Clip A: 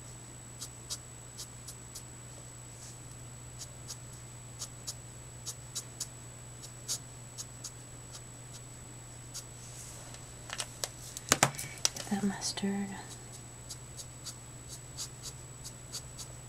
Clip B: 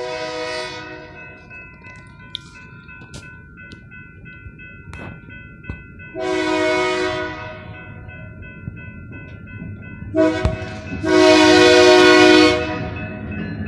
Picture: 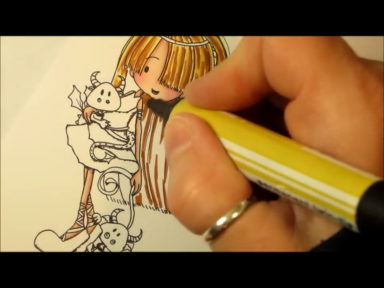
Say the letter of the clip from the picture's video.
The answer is A